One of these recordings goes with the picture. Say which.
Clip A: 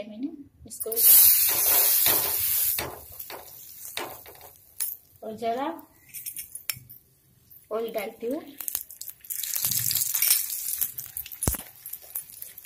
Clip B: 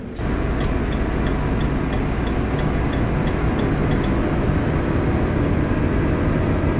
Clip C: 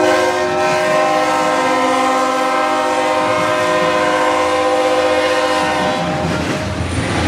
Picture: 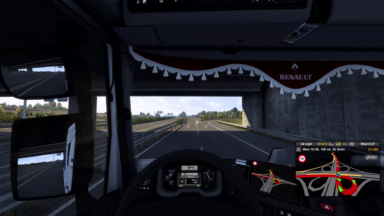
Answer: B